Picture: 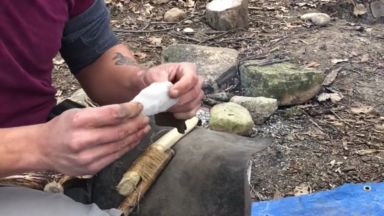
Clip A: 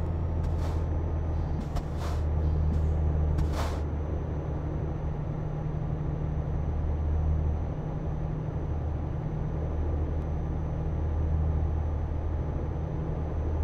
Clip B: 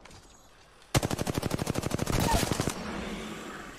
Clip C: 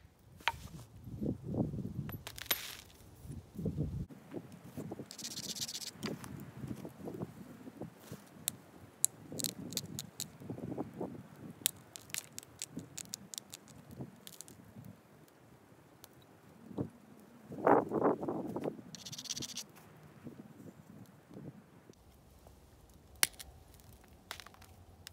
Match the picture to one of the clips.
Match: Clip C